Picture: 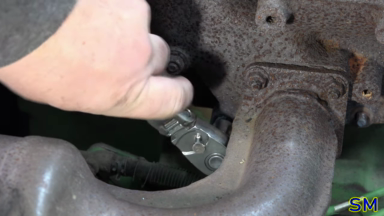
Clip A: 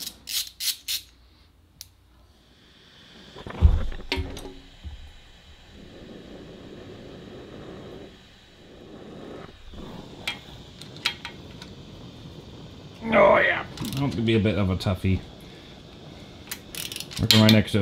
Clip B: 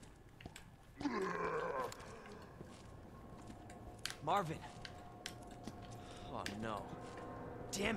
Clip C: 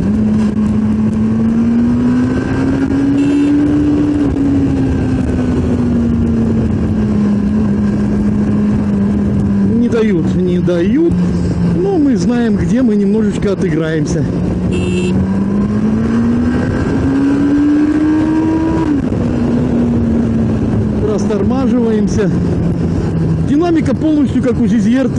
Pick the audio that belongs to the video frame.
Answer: A